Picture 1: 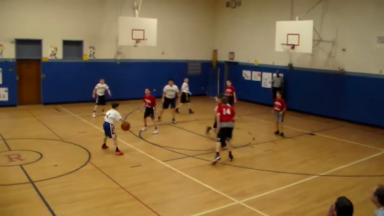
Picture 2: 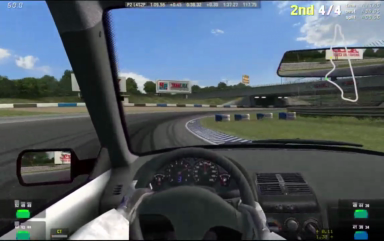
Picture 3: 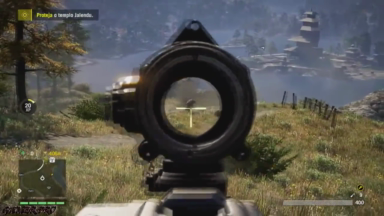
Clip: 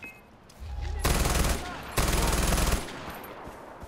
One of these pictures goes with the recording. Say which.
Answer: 3